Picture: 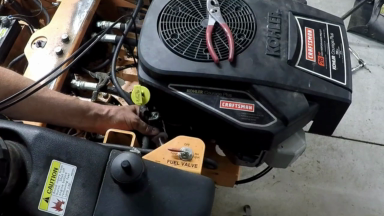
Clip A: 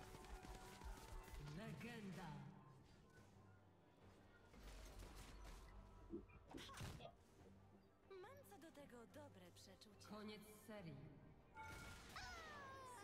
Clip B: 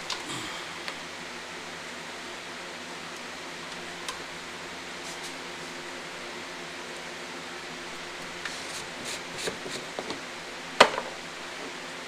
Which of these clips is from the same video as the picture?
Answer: B